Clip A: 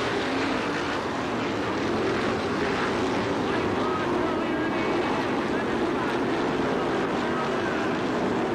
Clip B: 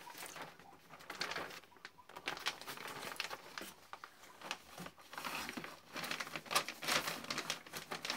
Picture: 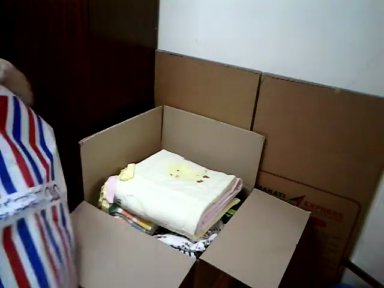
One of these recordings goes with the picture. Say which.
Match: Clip B